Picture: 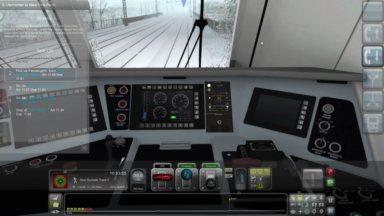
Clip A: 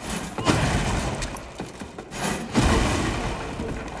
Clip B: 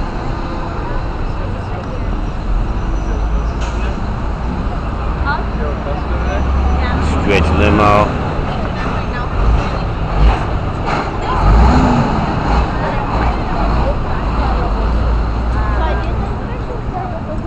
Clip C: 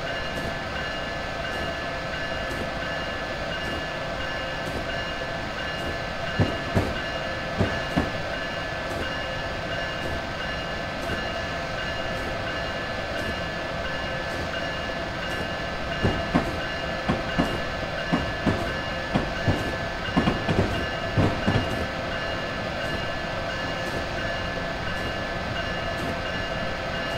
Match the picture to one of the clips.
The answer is C